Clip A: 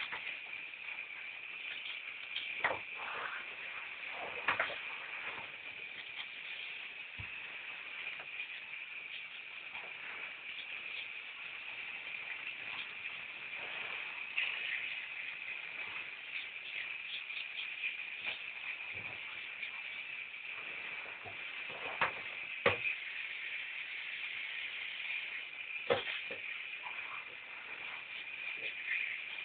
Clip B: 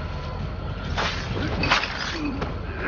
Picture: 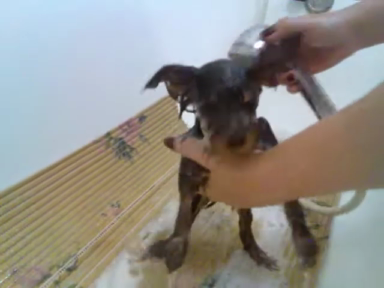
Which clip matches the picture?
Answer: A